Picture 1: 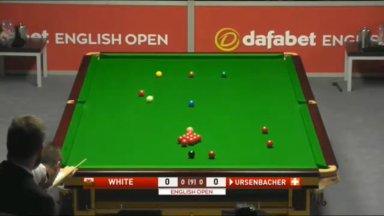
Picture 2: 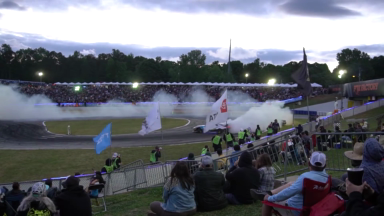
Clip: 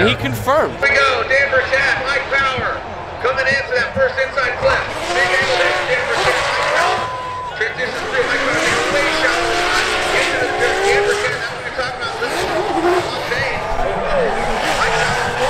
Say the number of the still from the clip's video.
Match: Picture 2